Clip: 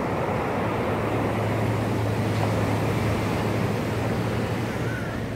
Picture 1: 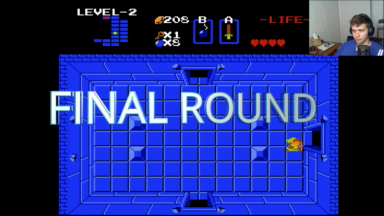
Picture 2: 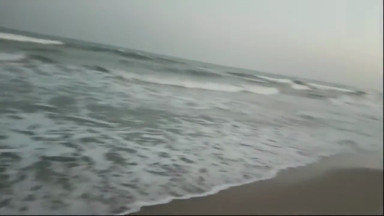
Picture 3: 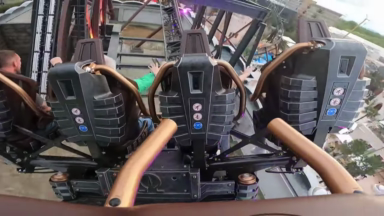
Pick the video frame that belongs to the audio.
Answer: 2